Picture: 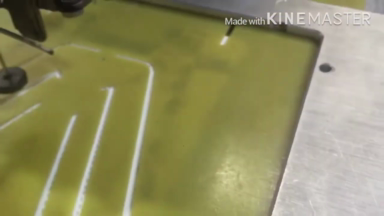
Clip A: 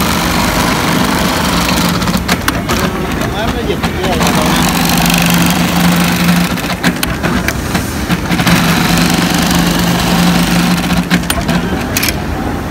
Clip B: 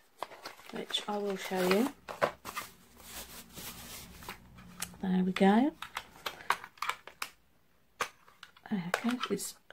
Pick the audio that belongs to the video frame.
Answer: A